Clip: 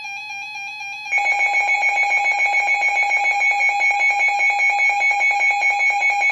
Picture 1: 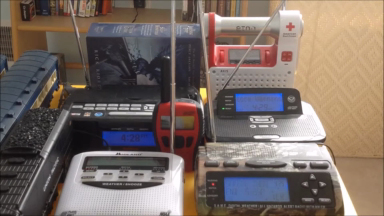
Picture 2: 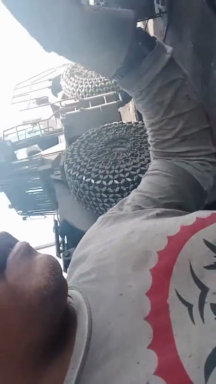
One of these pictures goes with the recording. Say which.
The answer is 1